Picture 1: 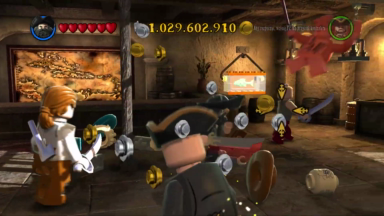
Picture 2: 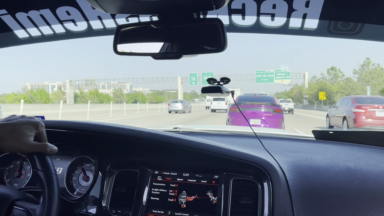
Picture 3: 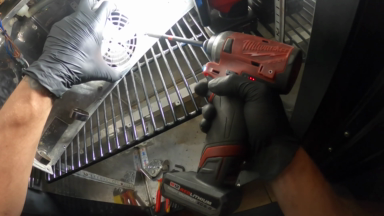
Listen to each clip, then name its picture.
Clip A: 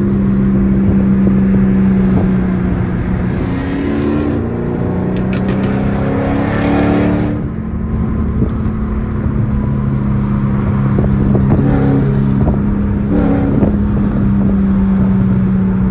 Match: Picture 2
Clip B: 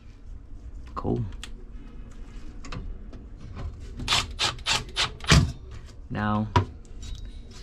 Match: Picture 3